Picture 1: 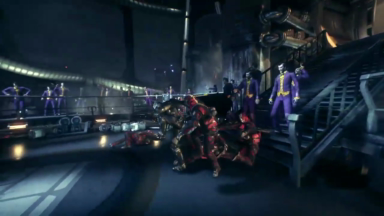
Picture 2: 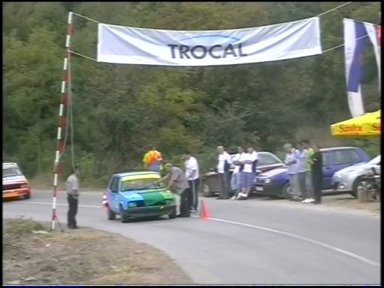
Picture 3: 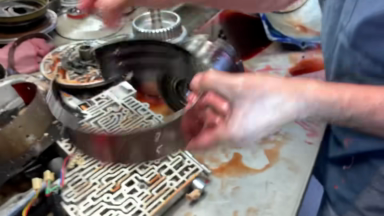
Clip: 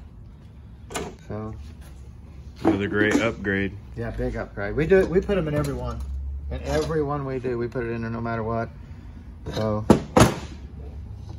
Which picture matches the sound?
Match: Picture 3